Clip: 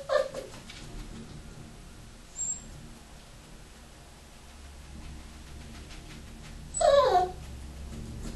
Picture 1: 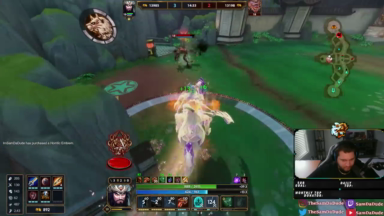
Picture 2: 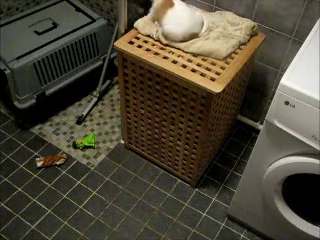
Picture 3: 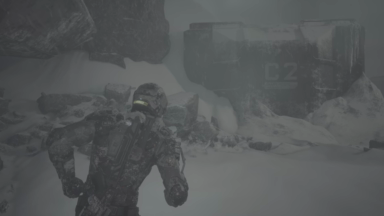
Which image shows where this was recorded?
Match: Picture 2